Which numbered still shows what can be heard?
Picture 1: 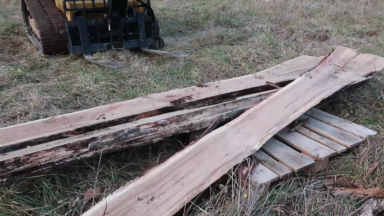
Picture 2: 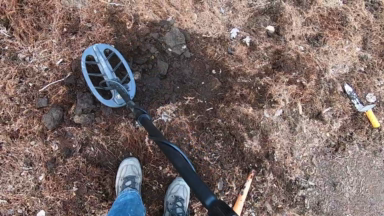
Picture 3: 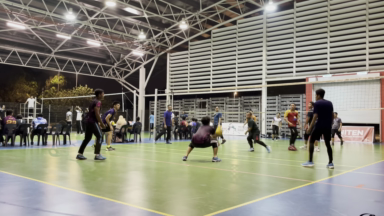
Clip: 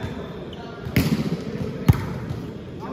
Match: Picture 3